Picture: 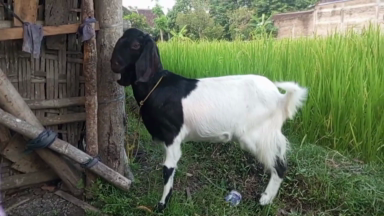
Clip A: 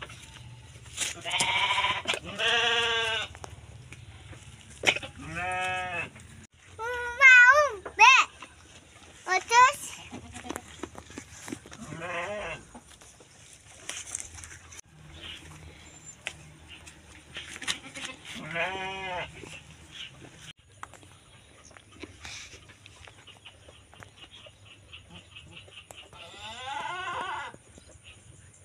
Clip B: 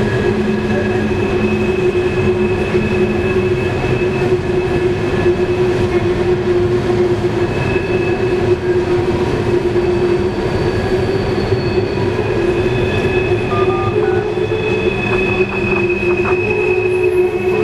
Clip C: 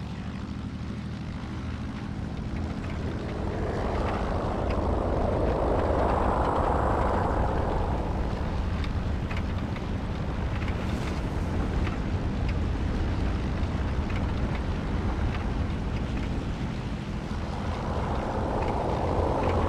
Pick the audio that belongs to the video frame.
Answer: A